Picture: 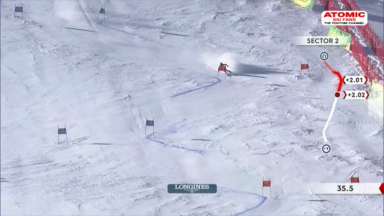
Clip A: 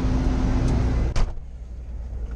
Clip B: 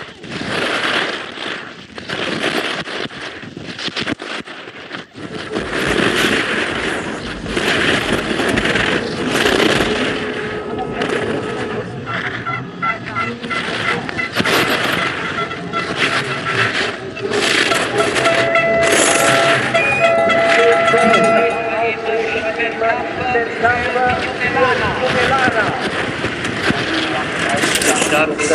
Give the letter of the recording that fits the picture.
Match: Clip B